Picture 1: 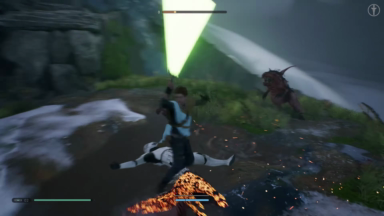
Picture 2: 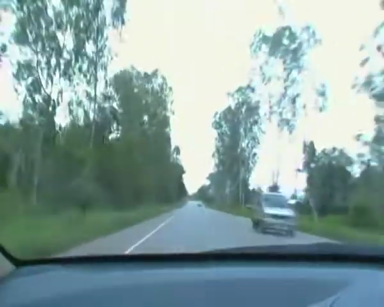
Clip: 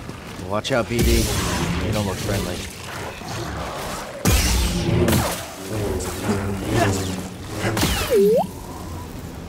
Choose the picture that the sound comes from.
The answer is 1